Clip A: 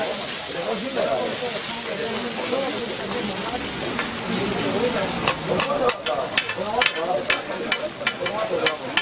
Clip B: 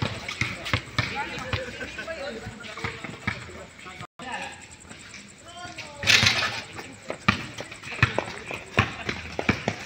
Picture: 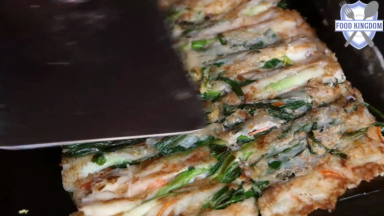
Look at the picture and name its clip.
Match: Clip A